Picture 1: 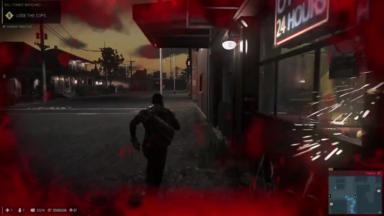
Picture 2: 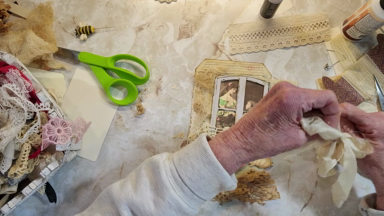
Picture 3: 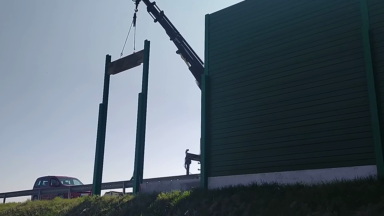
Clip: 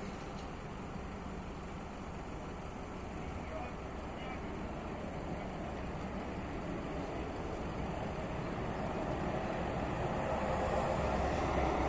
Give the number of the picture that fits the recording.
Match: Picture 3